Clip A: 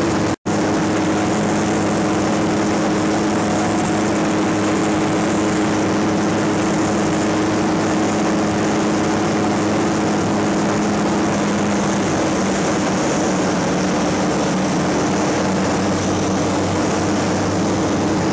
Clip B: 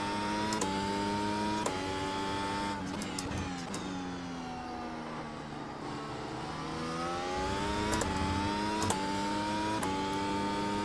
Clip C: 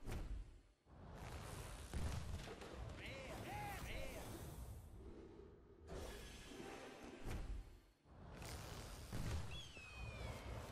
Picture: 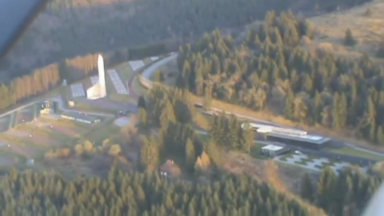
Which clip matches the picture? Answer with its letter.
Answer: A